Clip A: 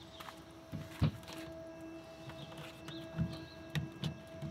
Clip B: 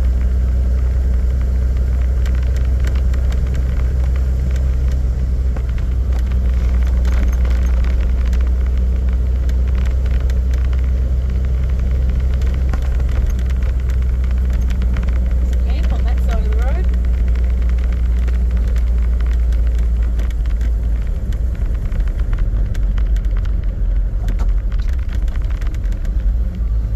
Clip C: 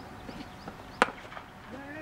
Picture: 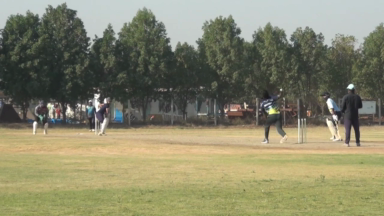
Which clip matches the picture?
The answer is C